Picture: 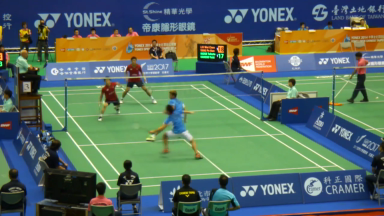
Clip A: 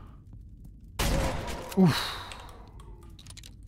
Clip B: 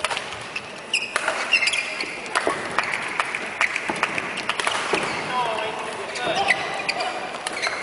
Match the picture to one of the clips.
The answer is B